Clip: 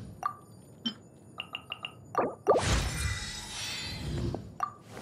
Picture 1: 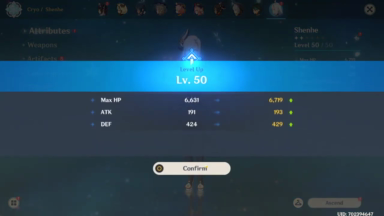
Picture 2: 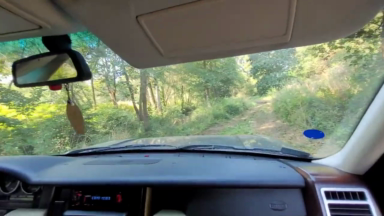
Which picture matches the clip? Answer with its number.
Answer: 1